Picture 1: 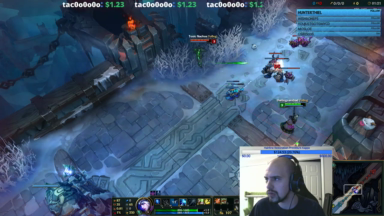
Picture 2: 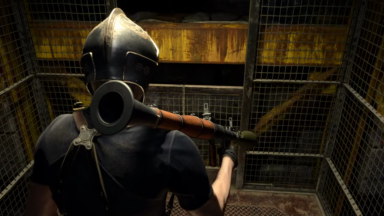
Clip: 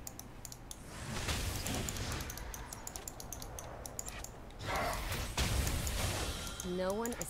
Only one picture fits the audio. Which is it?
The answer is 1